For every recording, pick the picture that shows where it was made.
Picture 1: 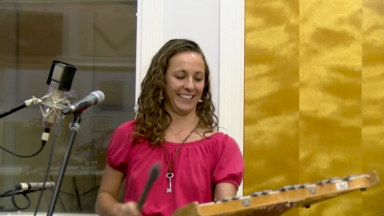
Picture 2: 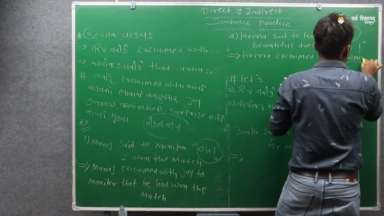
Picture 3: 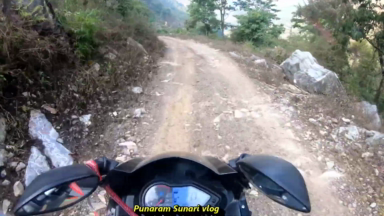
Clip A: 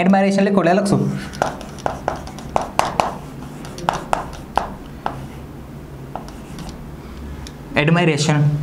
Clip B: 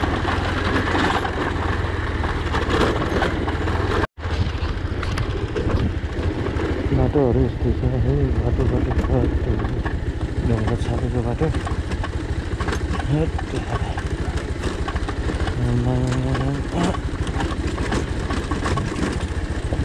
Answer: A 2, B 3